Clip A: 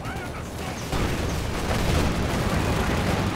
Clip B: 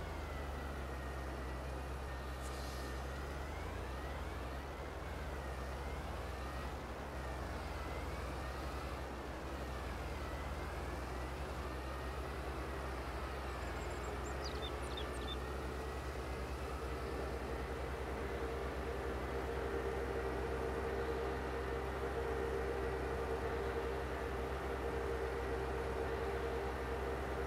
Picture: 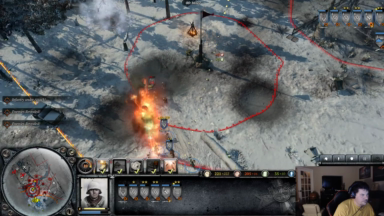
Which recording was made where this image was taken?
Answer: A